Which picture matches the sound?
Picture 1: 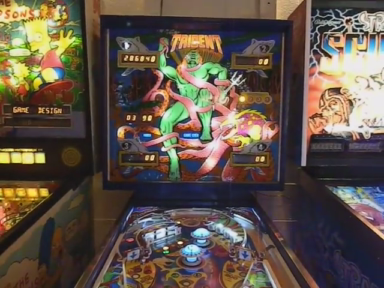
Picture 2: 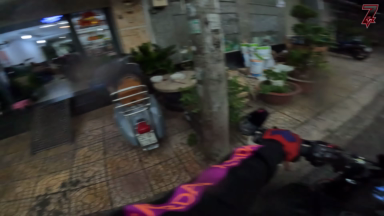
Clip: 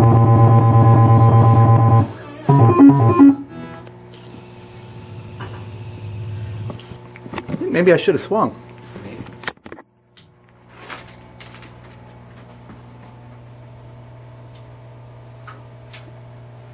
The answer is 1